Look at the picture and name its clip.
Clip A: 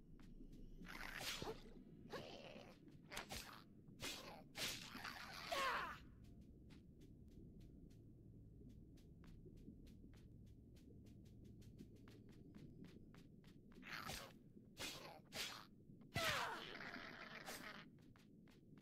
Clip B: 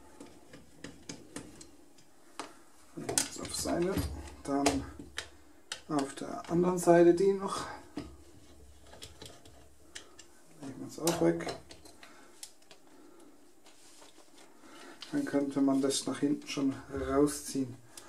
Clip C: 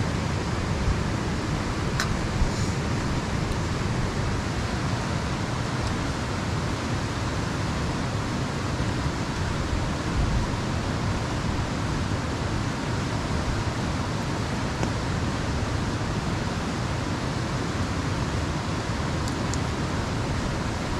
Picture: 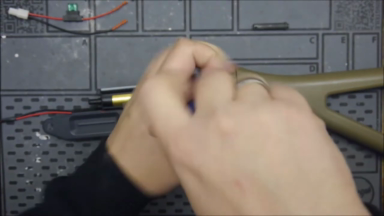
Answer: B